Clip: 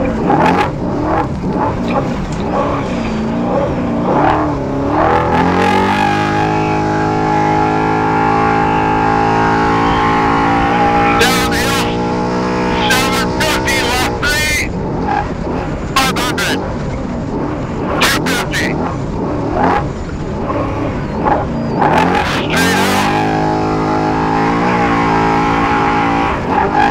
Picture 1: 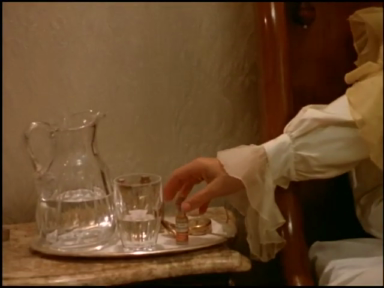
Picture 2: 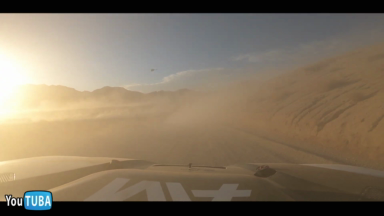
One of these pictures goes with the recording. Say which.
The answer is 2